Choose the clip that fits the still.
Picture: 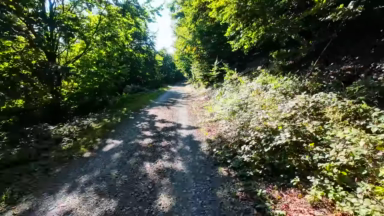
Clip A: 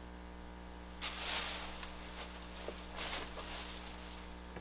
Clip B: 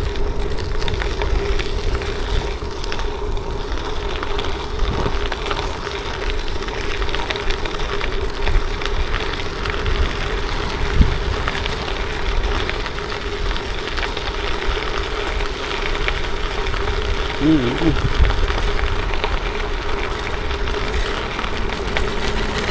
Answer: B